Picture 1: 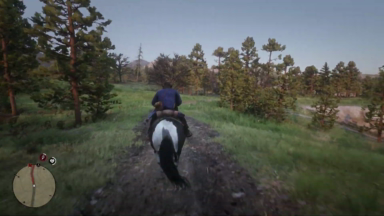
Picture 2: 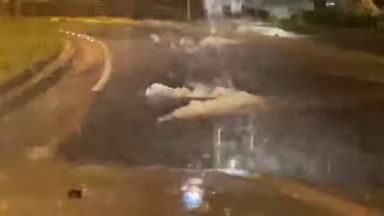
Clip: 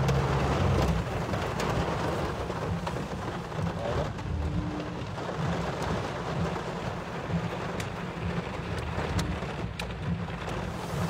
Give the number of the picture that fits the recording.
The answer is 2